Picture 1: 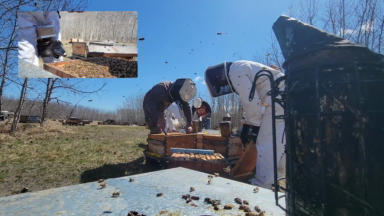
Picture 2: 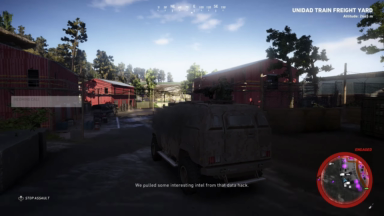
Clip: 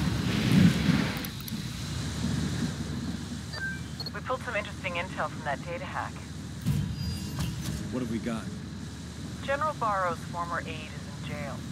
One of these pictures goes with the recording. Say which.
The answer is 2